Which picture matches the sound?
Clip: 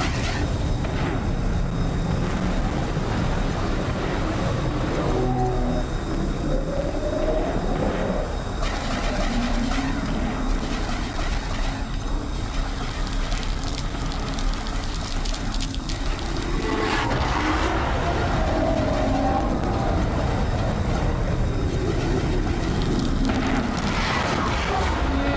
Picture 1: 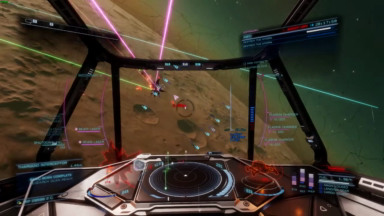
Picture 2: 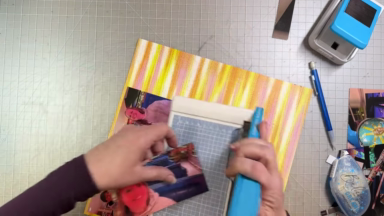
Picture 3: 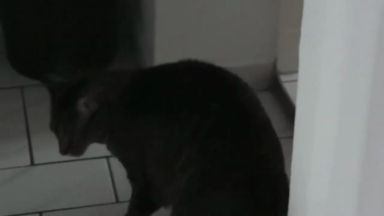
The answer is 1